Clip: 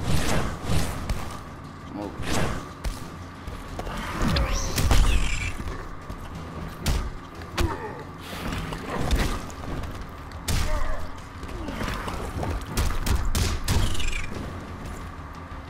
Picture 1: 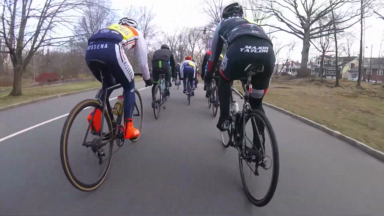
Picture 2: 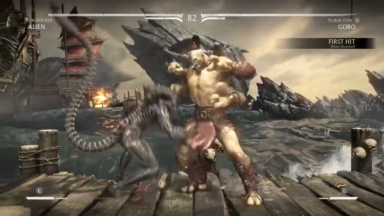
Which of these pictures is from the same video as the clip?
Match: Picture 2